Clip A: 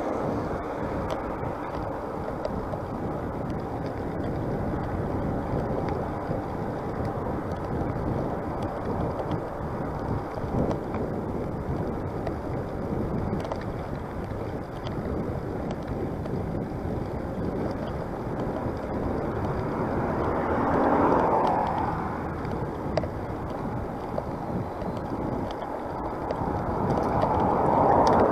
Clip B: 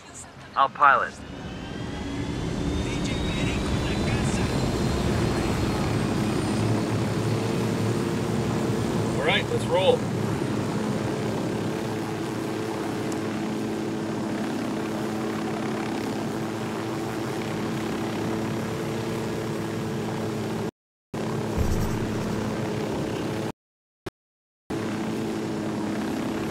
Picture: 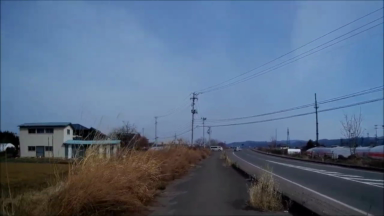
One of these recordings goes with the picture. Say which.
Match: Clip A